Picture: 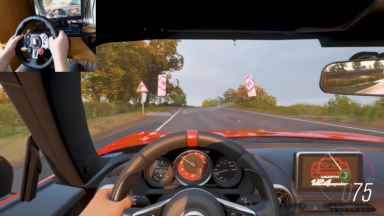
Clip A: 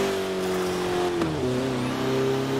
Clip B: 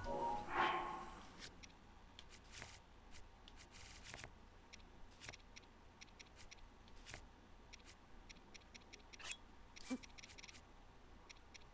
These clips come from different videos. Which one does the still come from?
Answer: A